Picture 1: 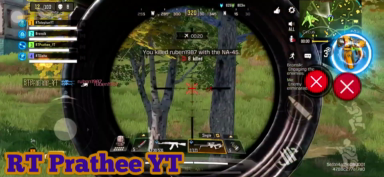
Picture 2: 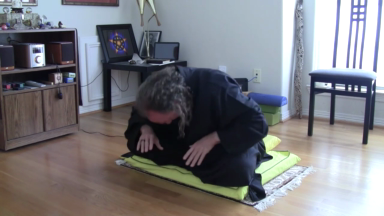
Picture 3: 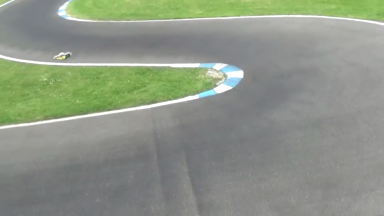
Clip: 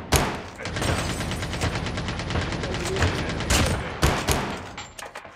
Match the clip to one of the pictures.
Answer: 1